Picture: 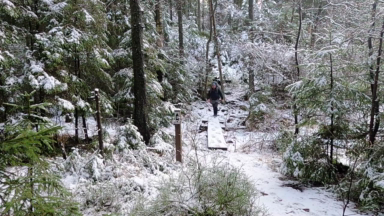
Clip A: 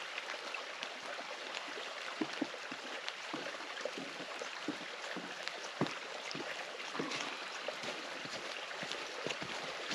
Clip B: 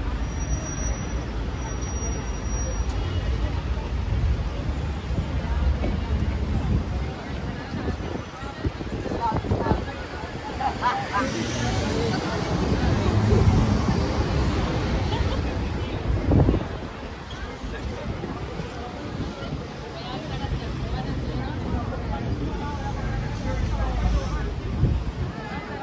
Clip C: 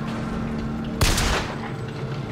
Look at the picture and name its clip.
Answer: A